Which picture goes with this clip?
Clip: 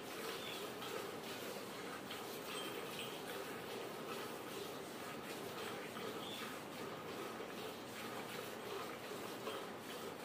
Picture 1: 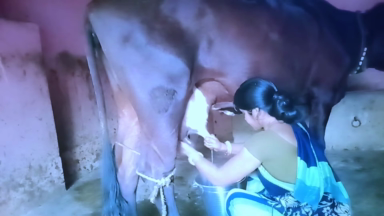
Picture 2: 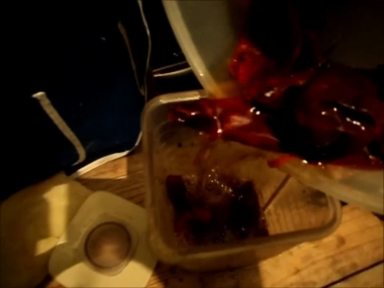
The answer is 1